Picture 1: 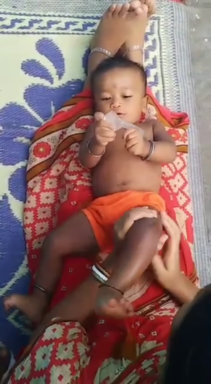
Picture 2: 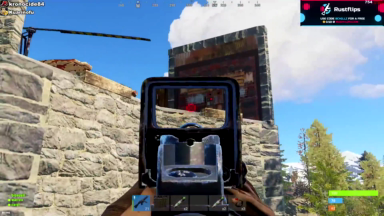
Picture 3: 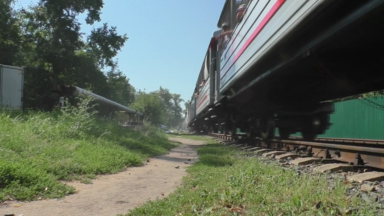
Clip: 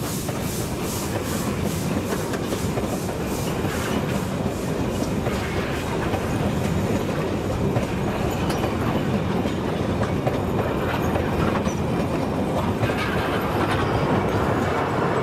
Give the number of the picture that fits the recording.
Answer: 3